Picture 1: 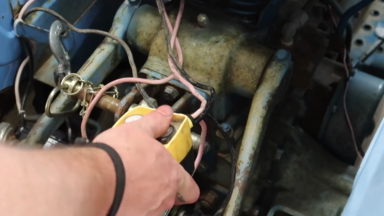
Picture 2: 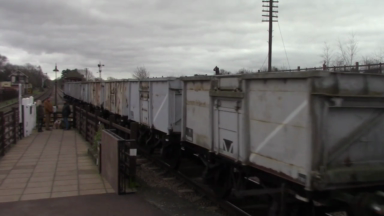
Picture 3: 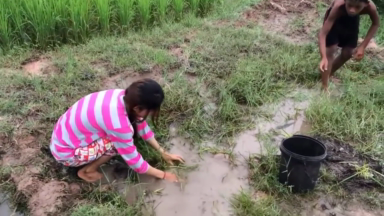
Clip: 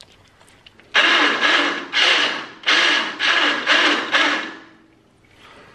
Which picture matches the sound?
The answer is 1